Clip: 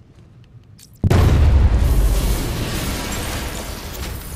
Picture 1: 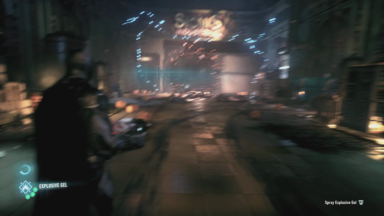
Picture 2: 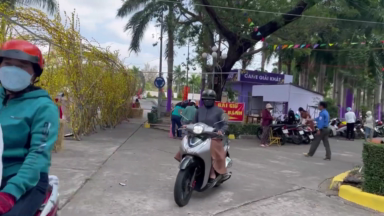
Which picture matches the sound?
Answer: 1